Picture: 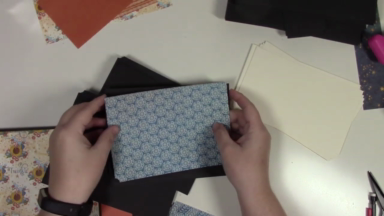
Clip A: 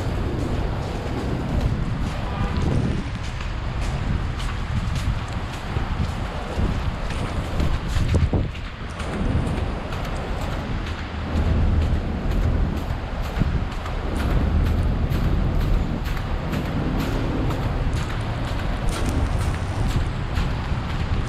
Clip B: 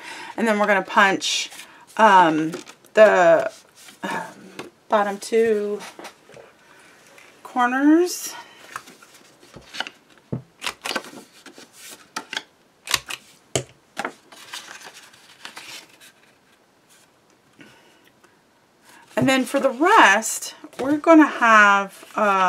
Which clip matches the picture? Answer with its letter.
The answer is B